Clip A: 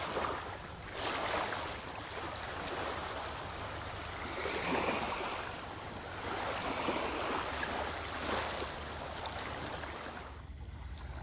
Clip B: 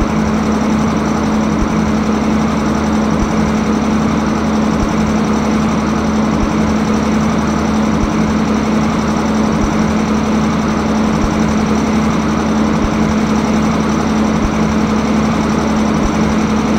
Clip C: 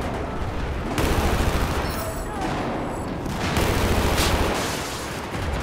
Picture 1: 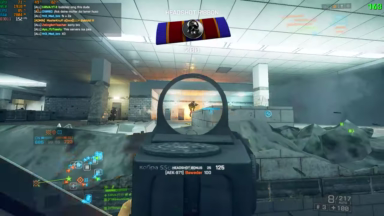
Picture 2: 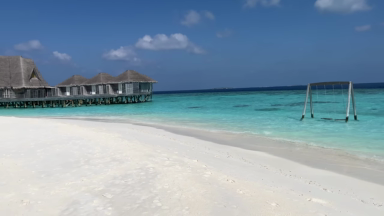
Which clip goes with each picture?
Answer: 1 C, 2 A